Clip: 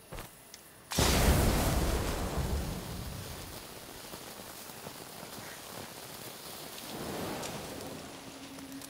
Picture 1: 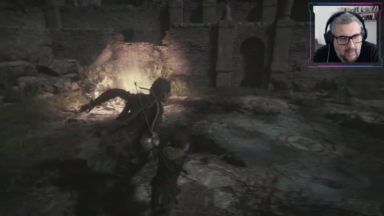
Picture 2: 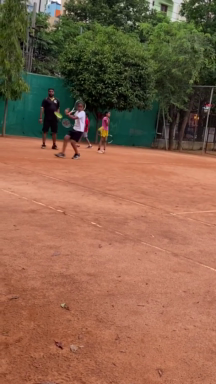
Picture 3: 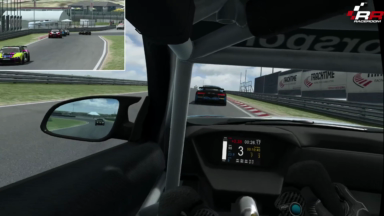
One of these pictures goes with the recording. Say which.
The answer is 1